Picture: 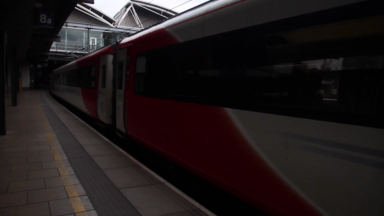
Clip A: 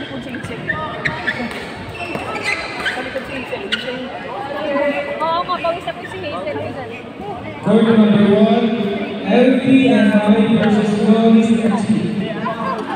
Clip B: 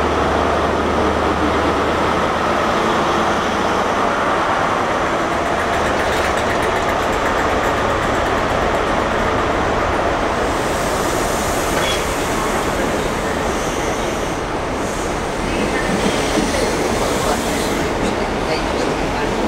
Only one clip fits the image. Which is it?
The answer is B